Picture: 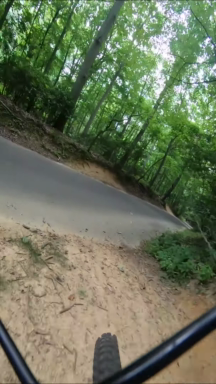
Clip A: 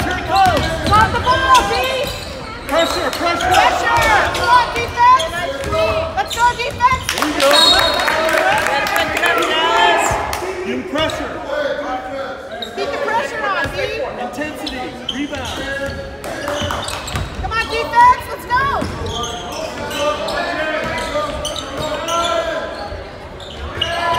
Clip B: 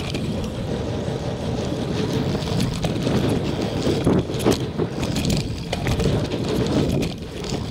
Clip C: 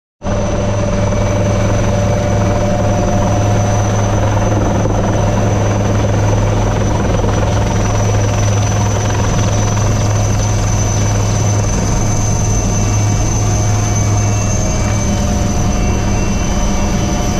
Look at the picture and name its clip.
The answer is B